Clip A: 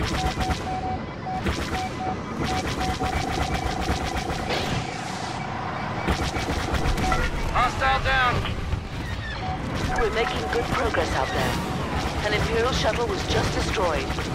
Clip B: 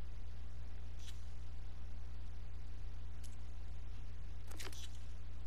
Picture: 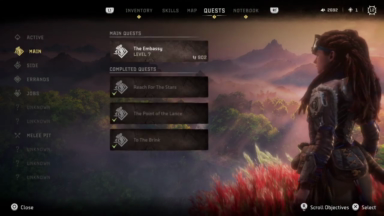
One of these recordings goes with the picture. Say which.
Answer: B